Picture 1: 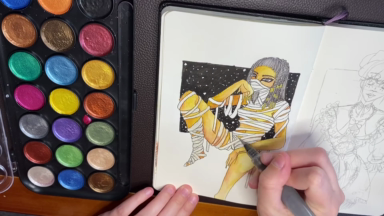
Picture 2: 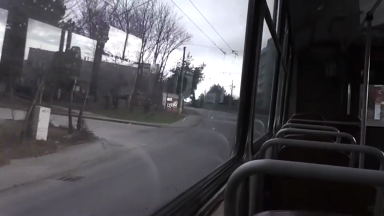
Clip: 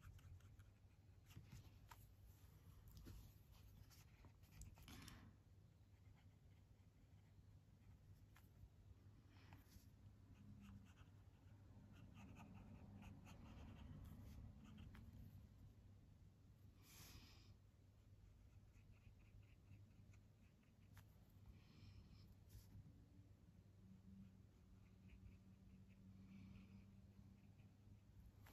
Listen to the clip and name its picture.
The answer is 1